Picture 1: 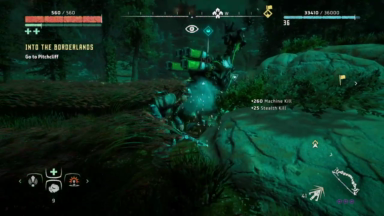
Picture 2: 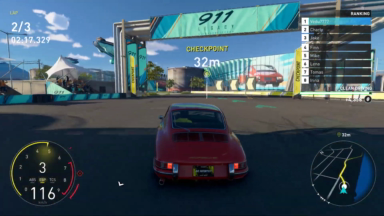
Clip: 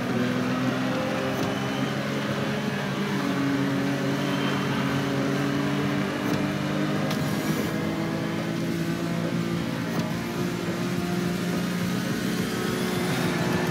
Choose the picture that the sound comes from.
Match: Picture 2